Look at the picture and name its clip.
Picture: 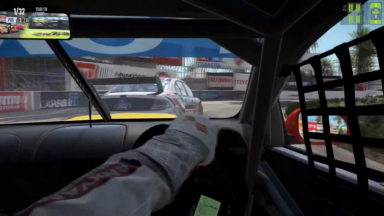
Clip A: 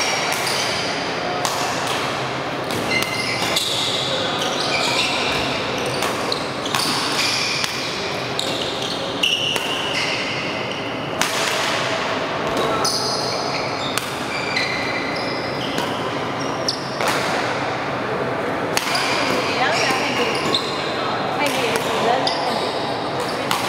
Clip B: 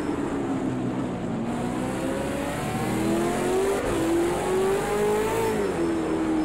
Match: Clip B